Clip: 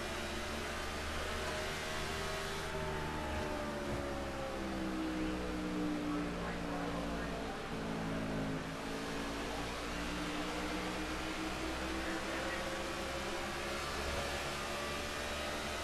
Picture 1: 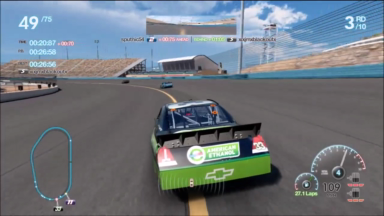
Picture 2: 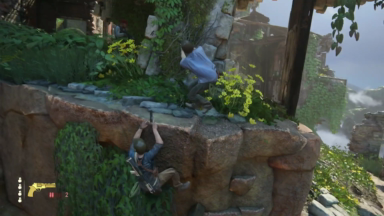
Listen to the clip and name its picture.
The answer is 1